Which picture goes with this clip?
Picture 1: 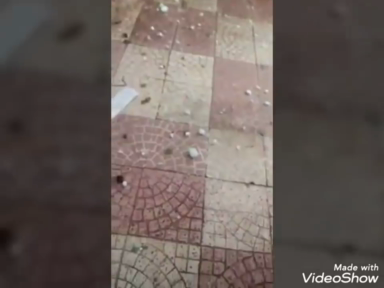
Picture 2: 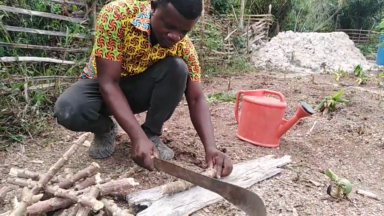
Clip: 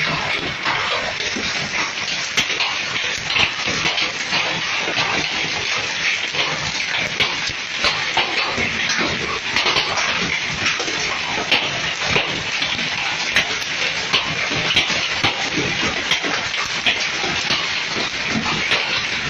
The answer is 1